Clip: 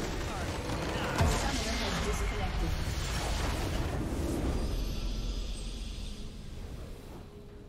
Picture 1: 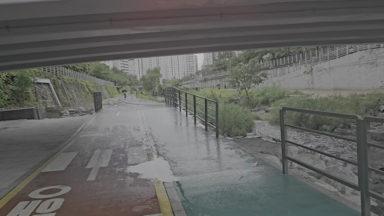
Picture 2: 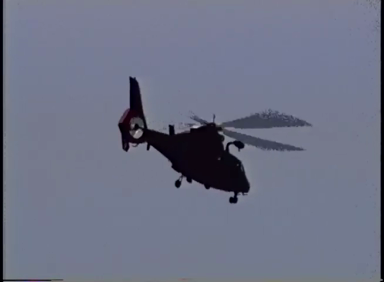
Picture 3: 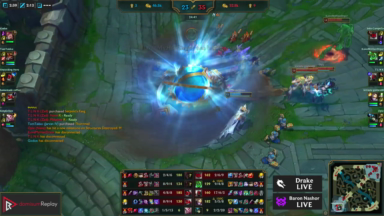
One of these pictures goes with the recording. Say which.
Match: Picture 3